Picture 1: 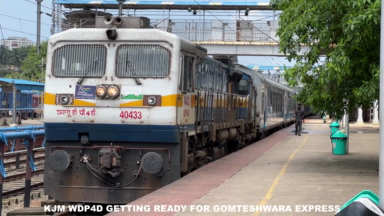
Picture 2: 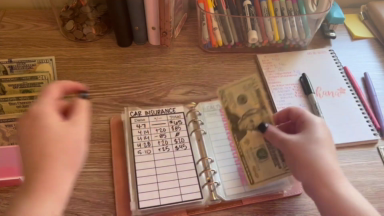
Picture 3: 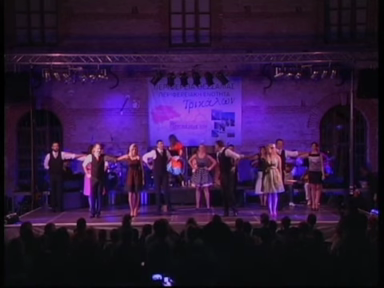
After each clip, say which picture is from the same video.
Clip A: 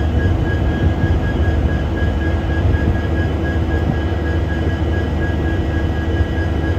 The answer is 1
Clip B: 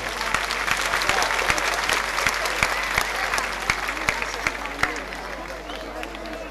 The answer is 3